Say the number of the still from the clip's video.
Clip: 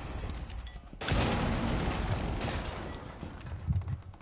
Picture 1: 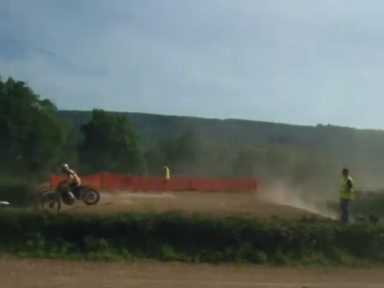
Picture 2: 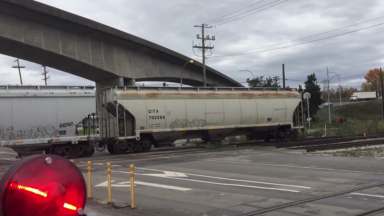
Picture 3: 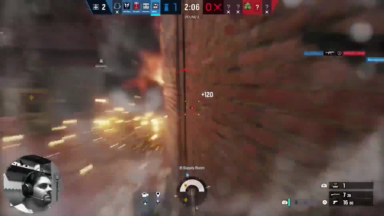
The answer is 3